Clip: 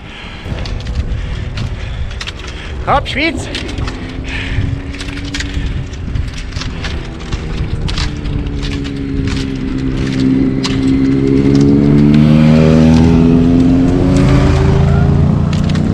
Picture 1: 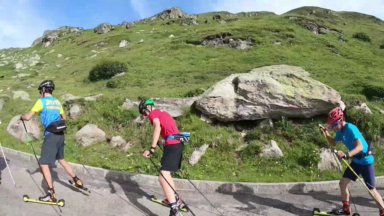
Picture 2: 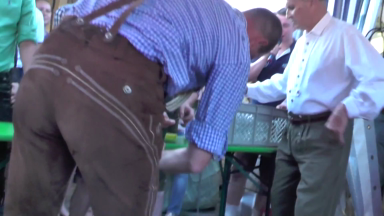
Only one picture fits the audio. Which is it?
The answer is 1